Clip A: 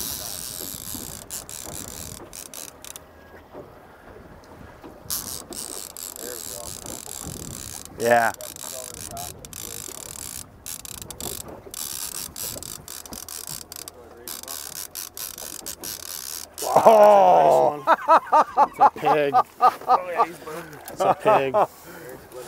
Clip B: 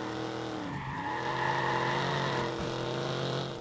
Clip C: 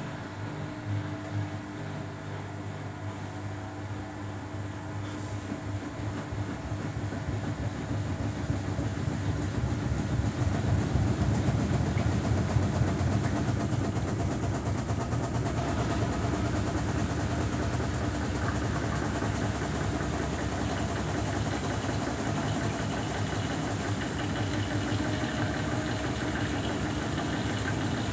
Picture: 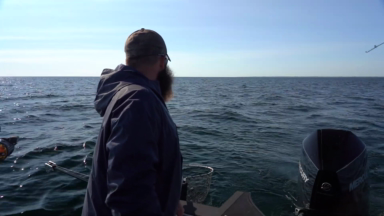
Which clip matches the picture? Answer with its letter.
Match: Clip A